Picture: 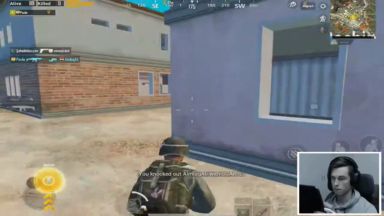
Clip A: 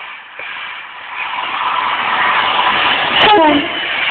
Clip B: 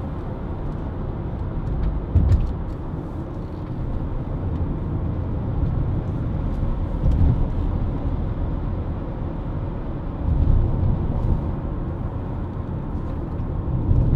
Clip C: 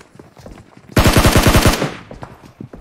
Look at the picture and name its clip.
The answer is C